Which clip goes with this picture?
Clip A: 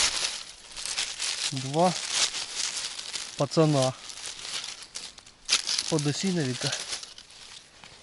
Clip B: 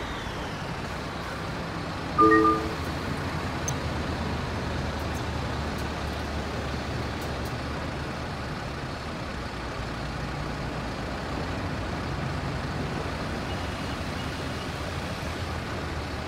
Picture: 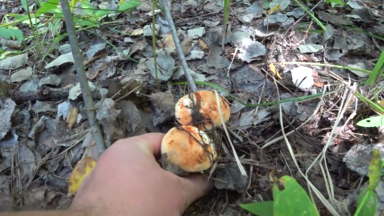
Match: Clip A